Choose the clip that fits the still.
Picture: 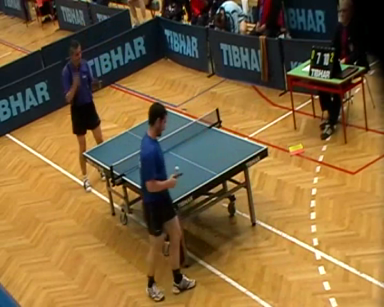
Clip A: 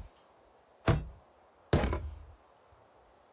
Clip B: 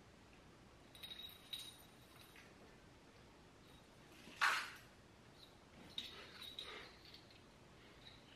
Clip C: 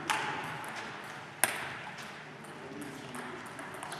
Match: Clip C